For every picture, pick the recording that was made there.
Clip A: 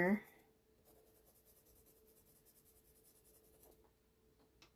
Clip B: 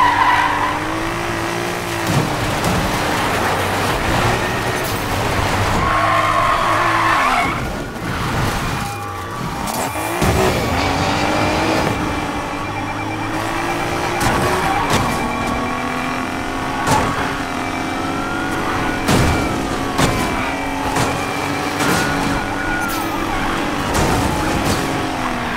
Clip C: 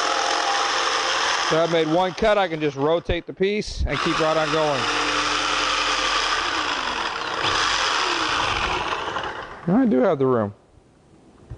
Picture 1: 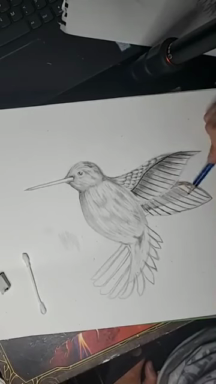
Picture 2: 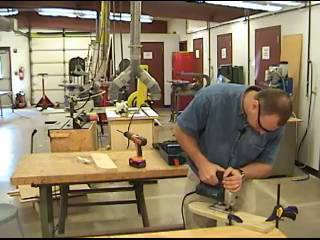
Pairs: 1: A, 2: C